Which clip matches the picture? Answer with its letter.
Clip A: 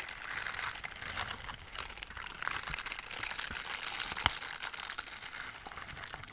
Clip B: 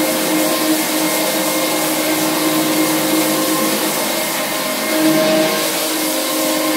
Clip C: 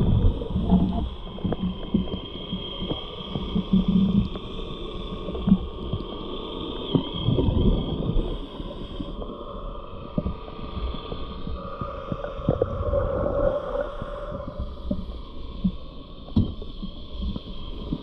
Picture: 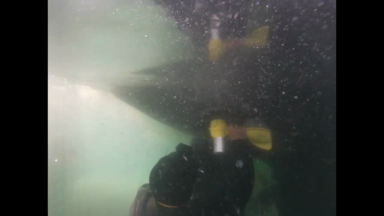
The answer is C